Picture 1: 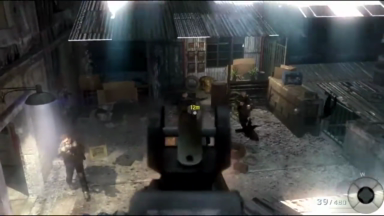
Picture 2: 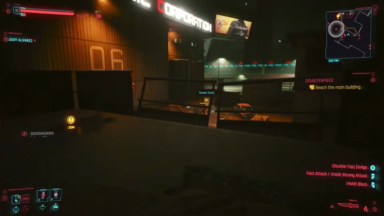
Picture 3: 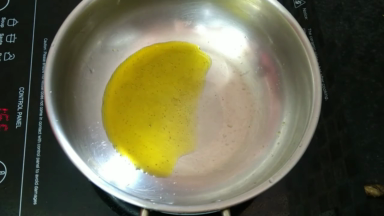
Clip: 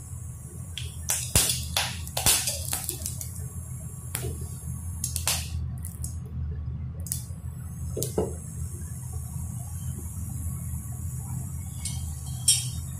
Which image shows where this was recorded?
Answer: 3